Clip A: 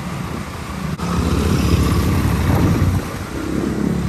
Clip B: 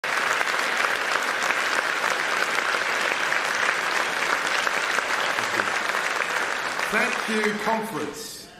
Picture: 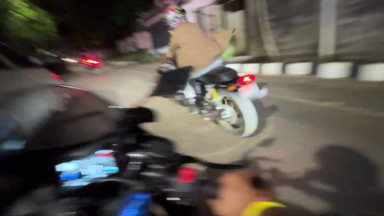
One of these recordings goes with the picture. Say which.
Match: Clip A